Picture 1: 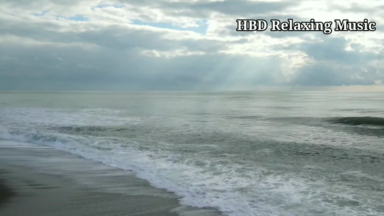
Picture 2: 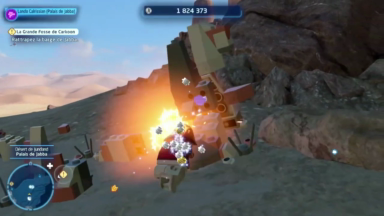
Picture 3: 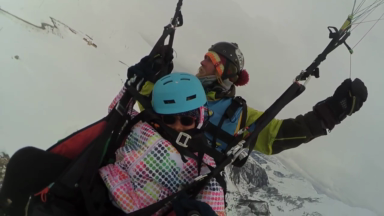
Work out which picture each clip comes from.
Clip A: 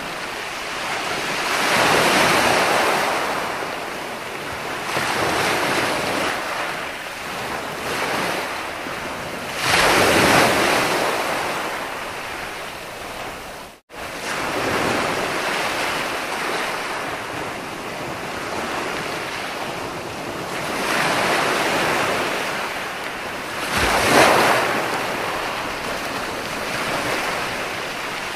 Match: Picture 1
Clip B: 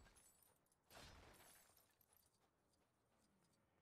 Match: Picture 2